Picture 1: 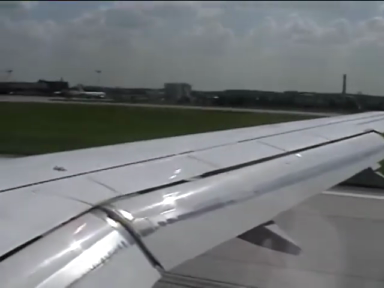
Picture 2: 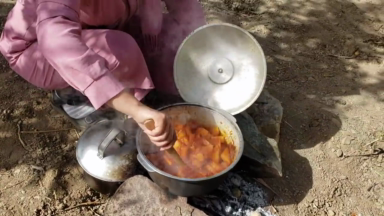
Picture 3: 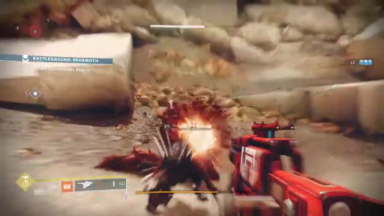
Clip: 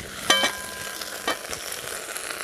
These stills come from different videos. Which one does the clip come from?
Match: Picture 2